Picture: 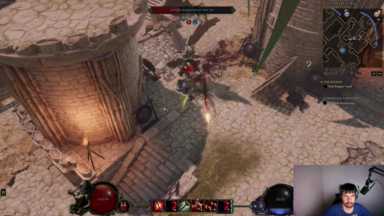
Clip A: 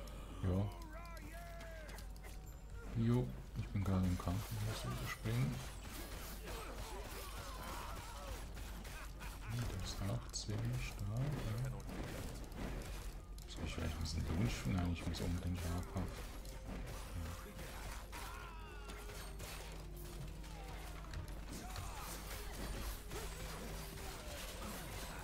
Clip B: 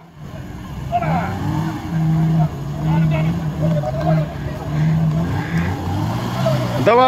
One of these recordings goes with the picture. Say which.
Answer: A